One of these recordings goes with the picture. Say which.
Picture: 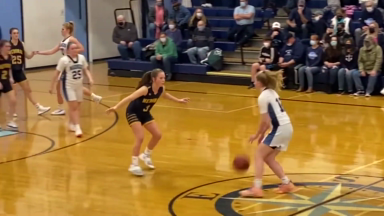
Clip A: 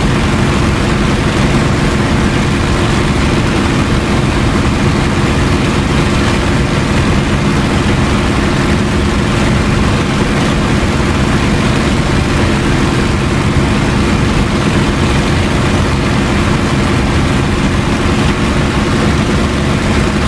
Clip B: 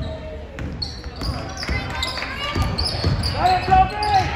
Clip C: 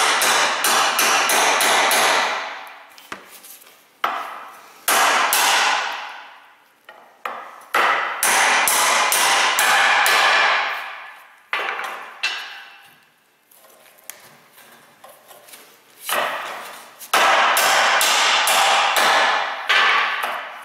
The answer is B